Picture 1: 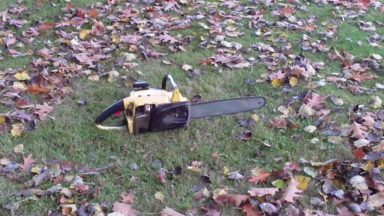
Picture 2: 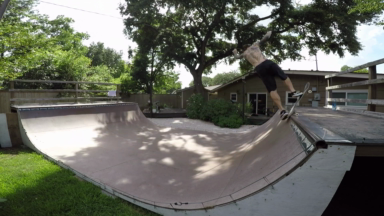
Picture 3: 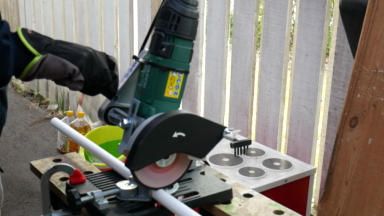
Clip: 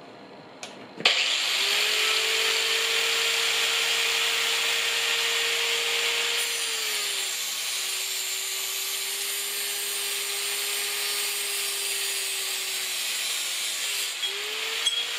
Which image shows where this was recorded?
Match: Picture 3